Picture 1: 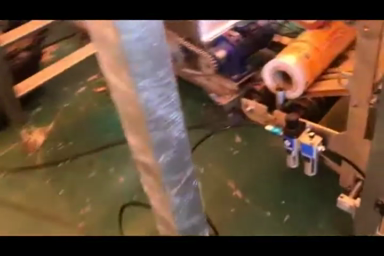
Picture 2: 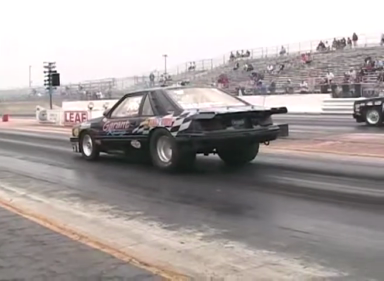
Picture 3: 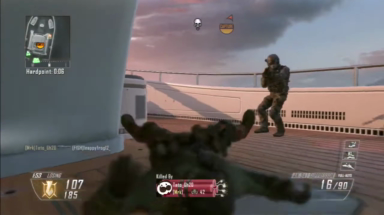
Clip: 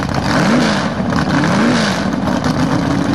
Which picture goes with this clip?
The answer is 2